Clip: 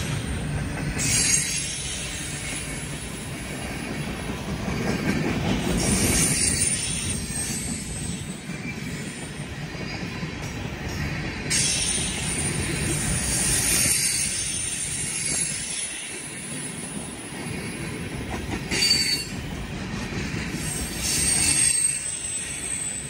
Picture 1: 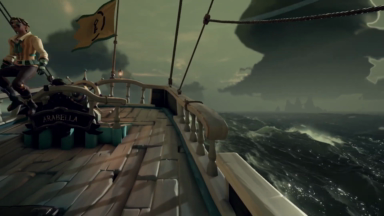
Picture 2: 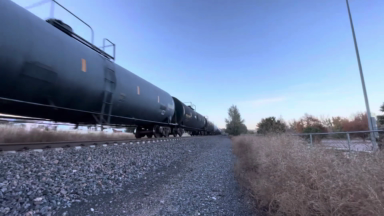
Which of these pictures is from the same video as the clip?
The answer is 2